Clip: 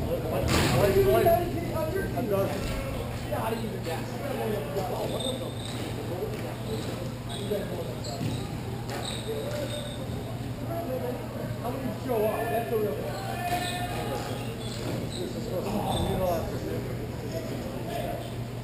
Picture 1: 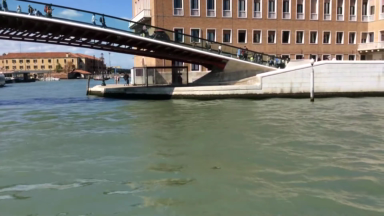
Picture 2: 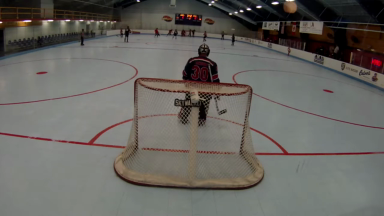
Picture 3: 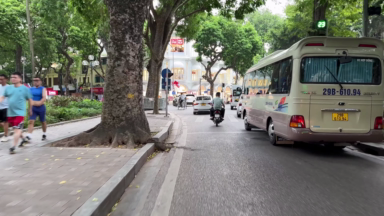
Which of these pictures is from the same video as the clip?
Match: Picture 2